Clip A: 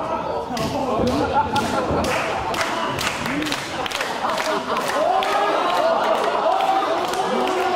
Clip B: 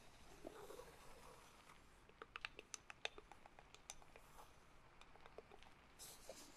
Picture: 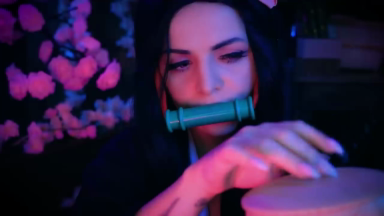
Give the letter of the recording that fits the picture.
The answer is B